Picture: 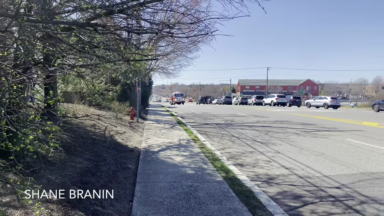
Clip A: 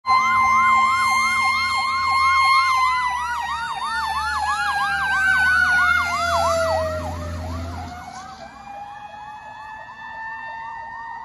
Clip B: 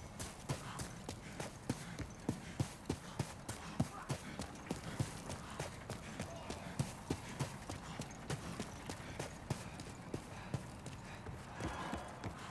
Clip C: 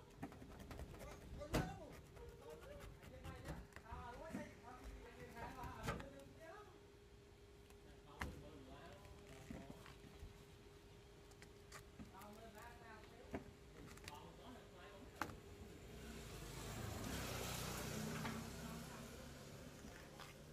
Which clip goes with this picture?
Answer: A